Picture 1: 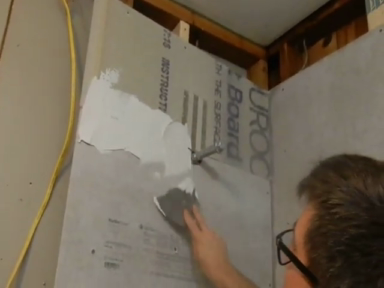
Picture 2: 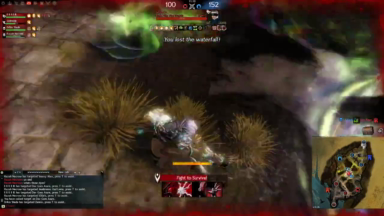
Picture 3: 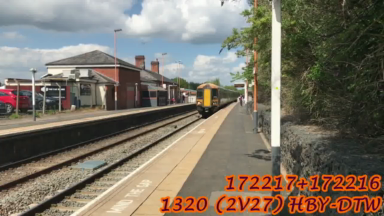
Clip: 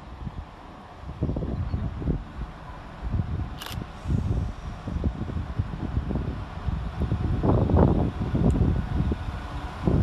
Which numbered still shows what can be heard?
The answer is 3